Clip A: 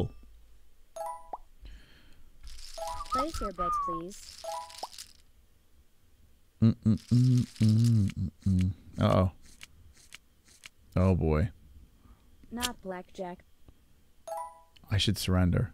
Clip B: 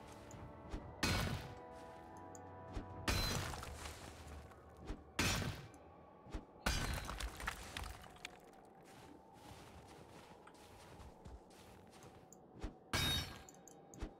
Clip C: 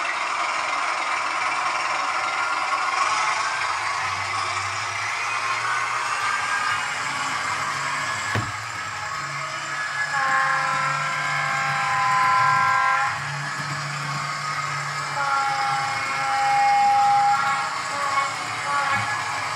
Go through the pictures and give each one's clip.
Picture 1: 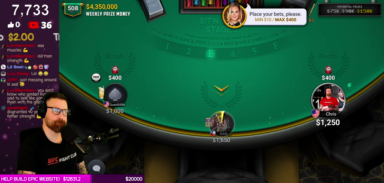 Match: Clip A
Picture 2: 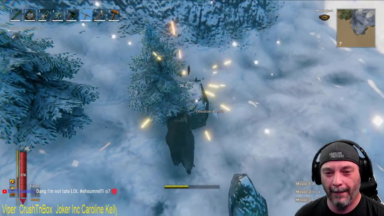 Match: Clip B